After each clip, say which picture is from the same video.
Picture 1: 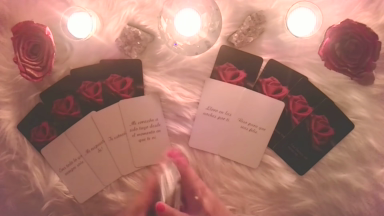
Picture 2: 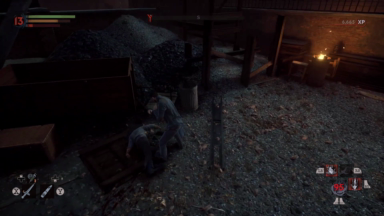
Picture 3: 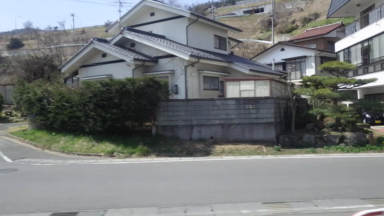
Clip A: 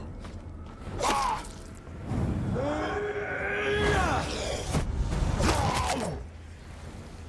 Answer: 2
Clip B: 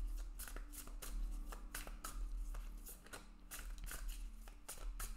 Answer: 1